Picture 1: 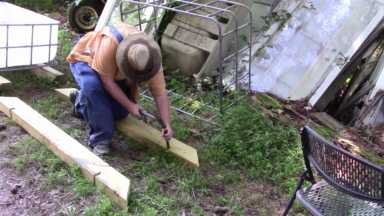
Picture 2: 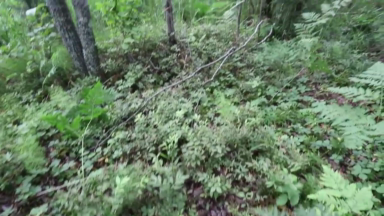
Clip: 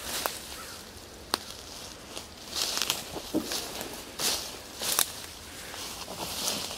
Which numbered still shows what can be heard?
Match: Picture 2